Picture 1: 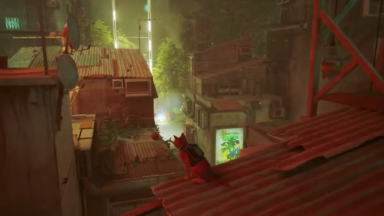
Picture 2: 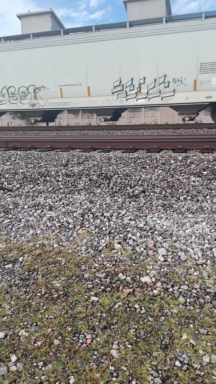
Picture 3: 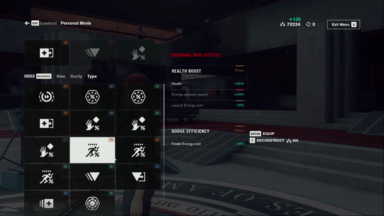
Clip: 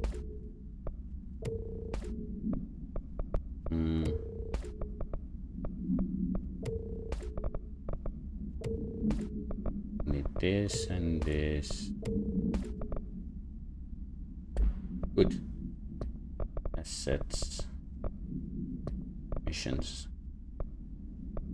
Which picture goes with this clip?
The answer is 3